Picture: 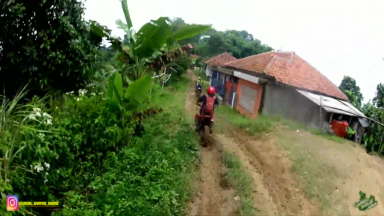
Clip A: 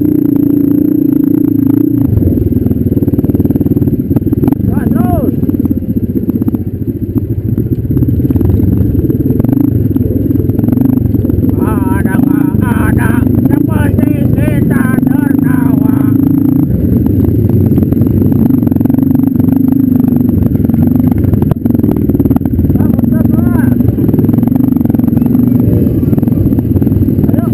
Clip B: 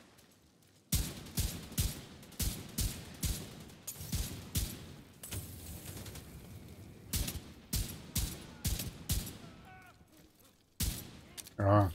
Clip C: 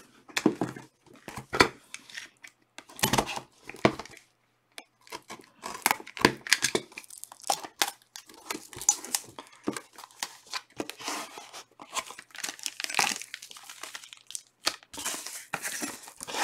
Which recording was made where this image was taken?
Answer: A